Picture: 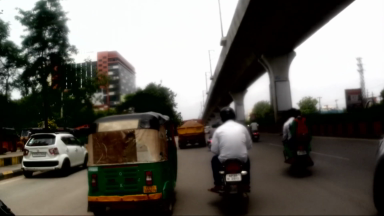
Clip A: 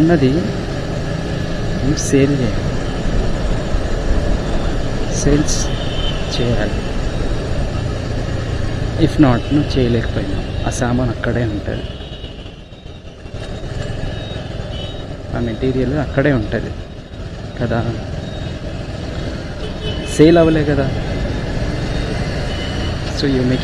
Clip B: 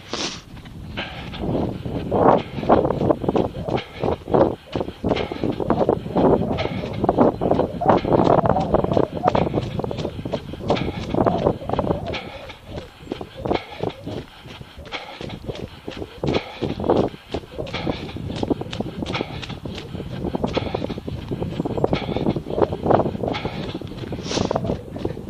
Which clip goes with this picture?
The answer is A